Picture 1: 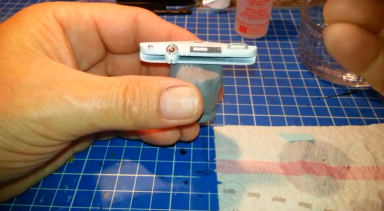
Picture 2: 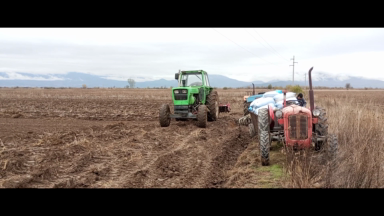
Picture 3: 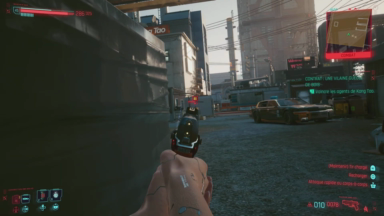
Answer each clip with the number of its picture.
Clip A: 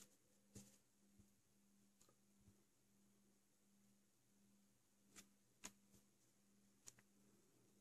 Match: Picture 1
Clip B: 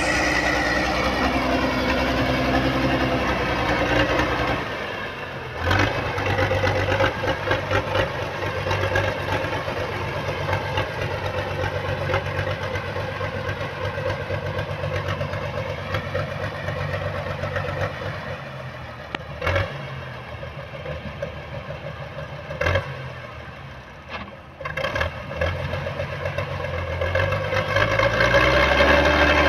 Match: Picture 2